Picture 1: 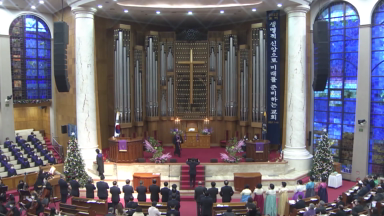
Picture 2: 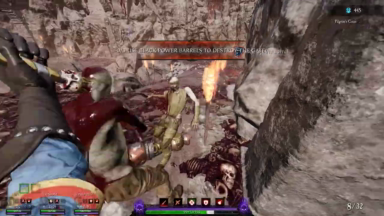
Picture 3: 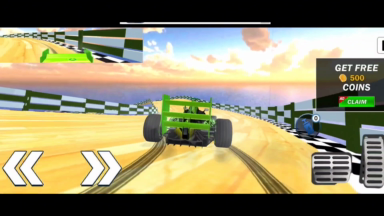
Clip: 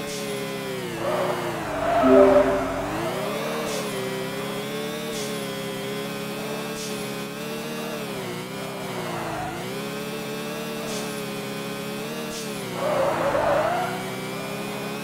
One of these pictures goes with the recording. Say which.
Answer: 3